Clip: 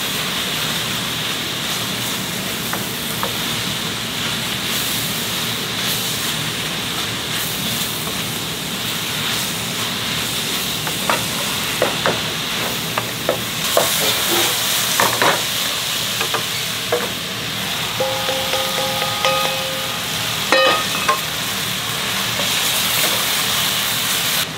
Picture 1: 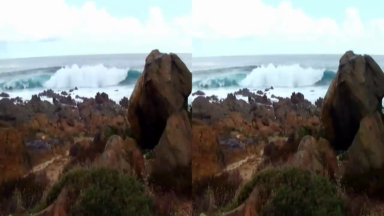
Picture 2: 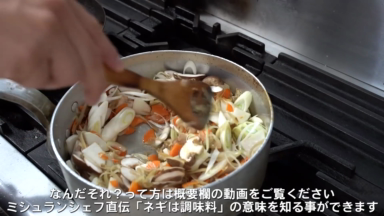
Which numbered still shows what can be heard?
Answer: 2